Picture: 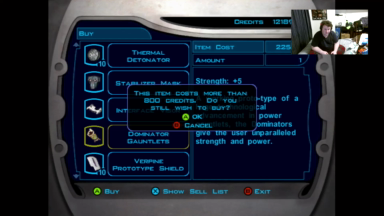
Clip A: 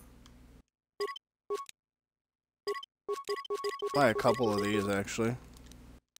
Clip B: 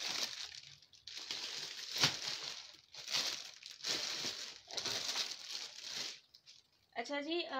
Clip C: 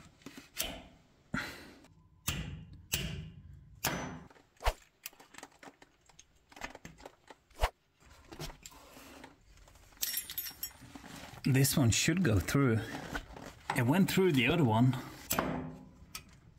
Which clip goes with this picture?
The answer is A